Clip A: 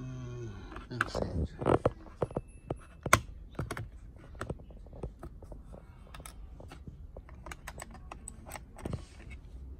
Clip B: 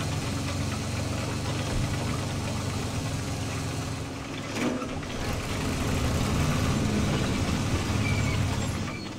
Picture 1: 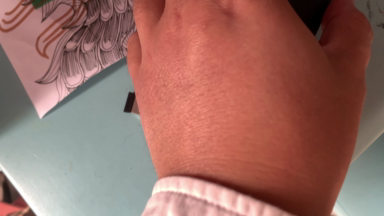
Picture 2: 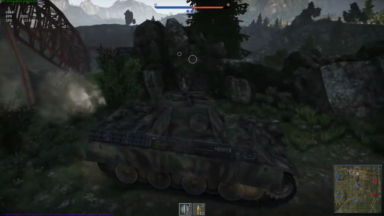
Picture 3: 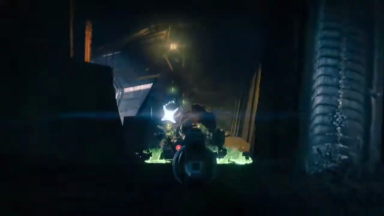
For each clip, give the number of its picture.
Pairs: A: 1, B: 2